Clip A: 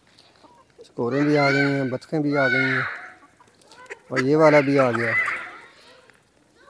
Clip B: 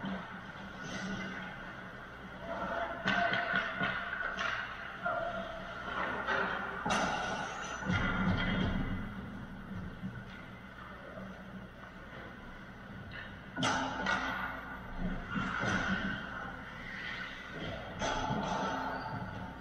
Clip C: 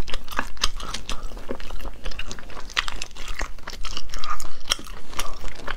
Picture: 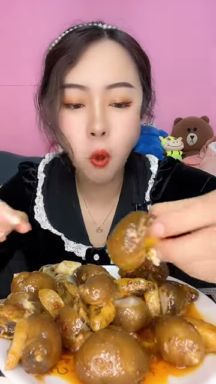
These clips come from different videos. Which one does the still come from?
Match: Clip C